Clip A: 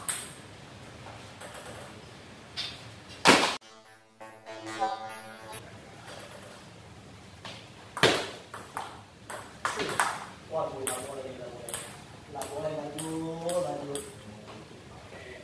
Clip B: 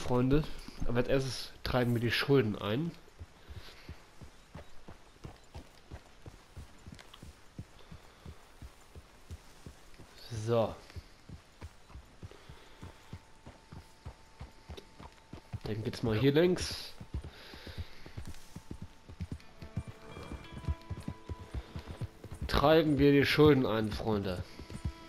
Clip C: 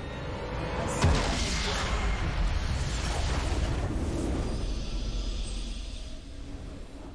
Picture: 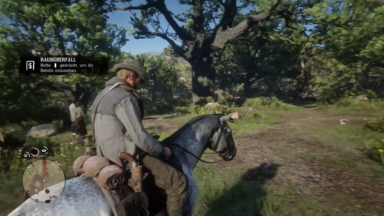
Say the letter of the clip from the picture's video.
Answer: B